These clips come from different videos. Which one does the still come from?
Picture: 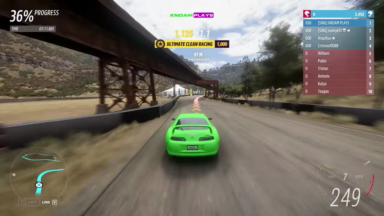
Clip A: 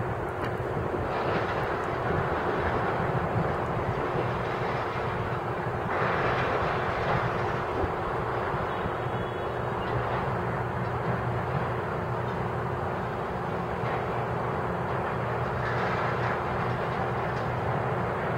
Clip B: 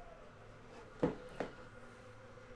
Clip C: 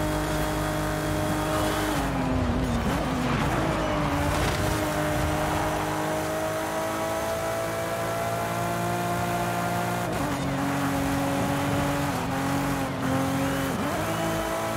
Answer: C